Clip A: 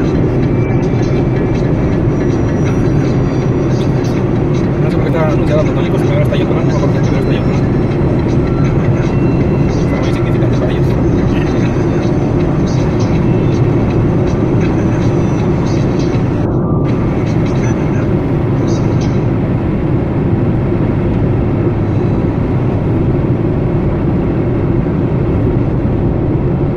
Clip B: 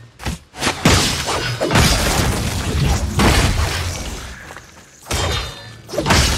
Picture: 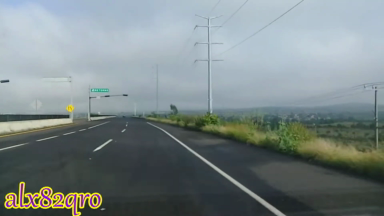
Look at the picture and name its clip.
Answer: A